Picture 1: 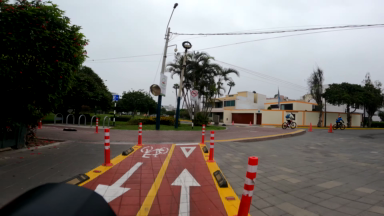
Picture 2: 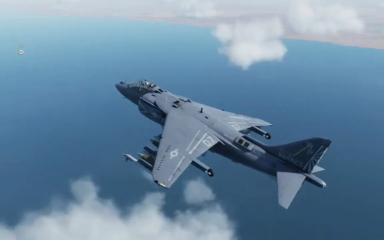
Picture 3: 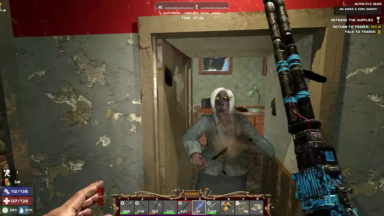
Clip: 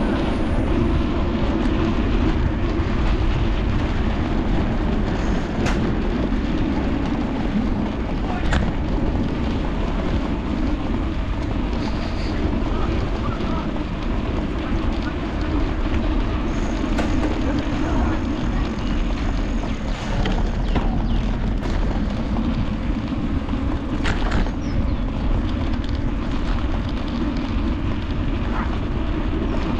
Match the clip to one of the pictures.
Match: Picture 1